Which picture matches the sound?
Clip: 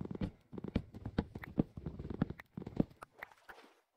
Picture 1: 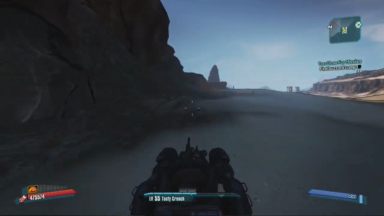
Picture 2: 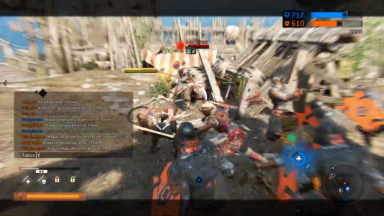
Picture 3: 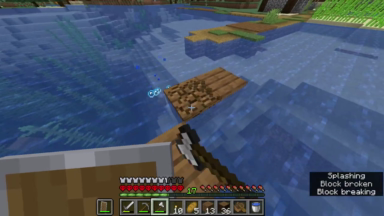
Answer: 3